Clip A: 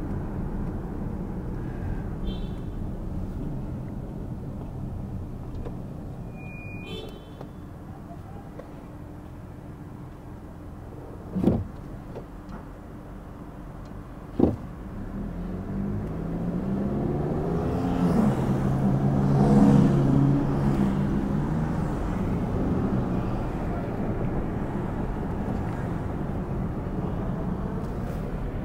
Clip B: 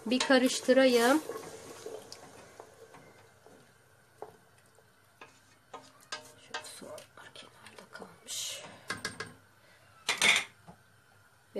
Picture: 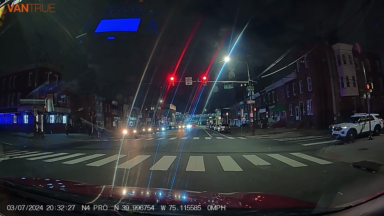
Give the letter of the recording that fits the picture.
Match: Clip A